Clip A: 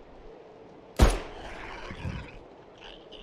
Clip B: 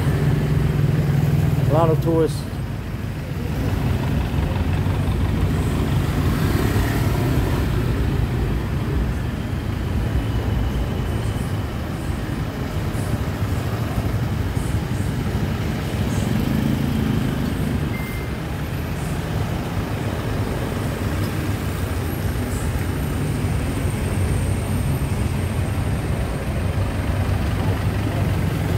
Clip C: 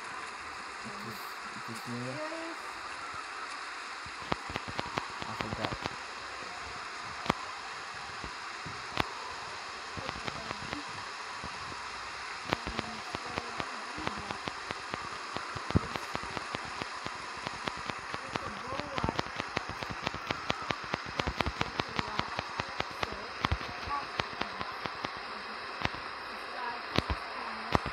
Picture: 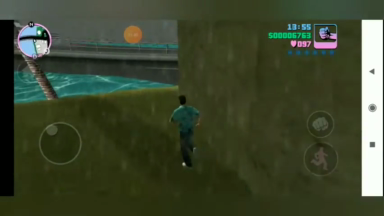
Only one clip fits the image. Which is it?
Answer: C